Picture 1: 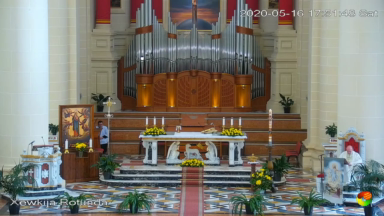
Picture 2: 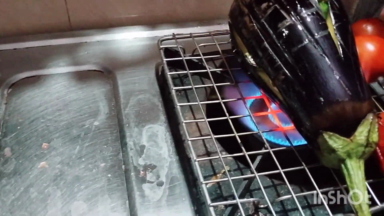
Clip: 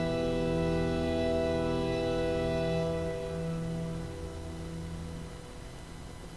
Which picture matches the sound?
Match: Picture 1